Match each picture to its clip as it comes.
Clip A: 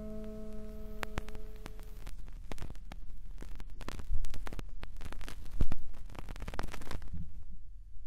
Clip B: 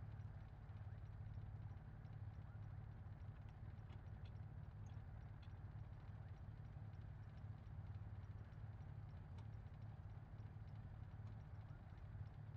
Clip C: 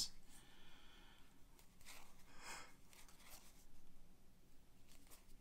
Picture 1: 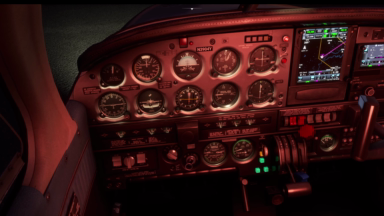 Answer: B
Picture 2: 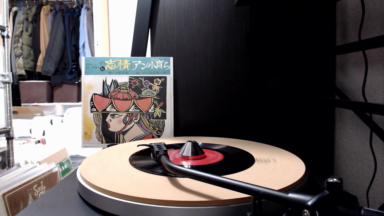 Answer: A